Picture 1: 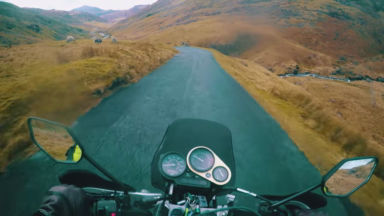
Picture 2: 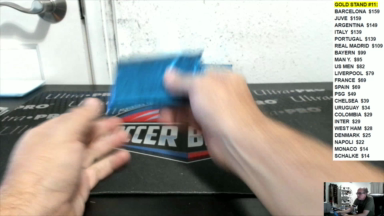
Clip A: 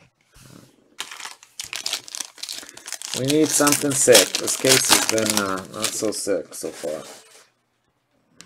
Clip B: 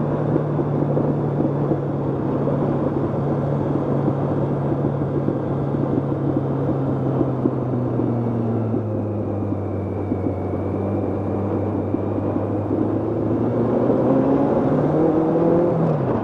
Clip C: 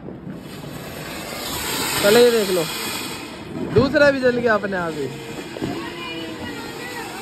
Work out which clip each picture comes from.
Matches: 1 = B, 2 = A